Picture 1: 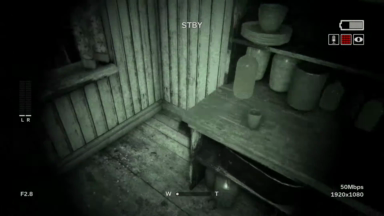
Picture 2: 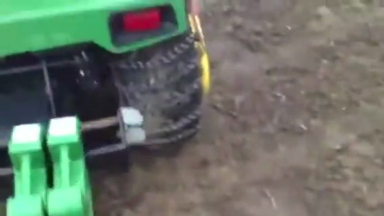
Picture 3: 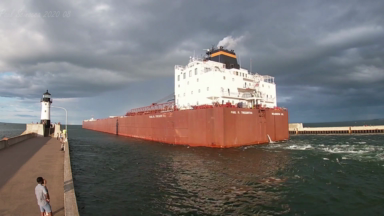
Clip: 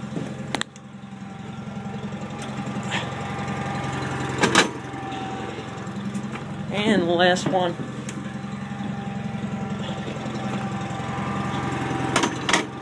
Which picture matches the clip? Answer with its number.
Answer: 2